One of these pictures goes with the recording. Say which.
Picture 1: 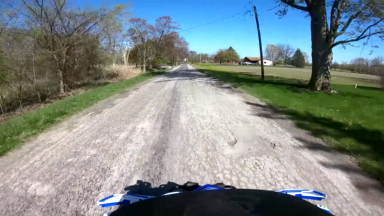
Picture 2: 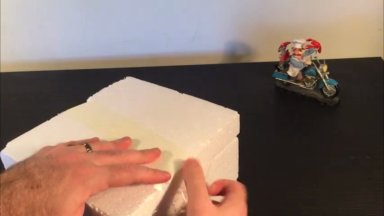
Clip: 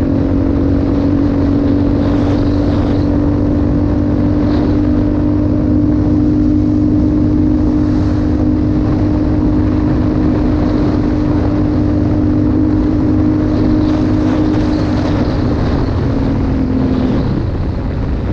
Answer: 1